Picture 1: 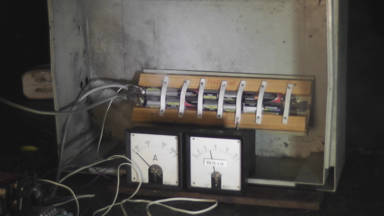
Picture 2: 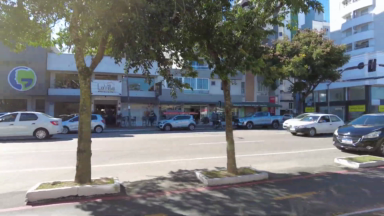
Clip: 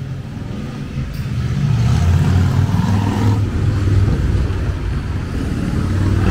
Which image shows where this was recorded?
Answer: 2